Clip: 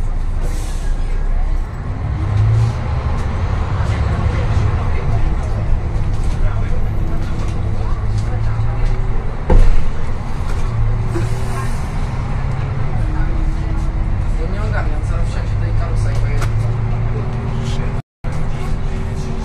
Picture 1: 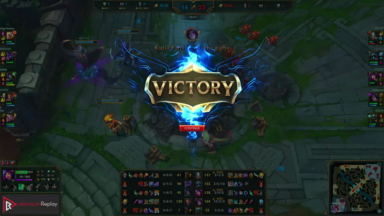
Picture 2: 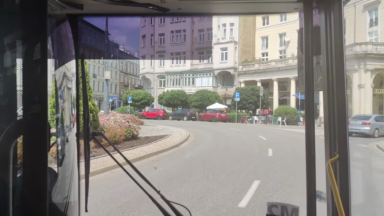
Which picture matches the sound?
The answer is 2